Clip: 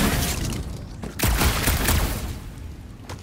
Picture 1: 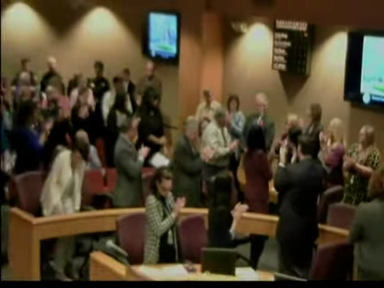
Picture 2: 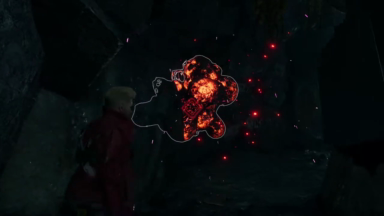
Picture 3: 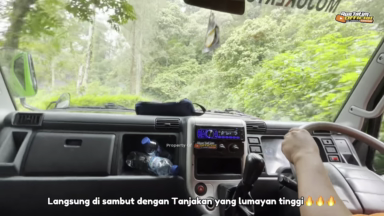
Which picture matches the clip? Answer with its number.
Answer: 2